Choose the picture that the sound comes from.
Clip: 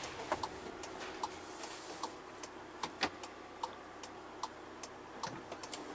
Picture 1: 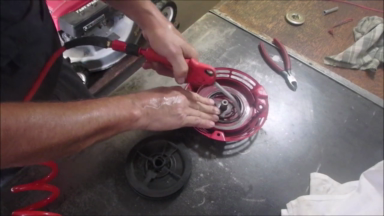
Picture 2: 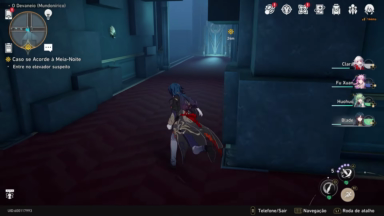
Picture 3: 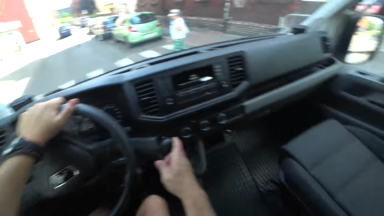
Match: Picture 3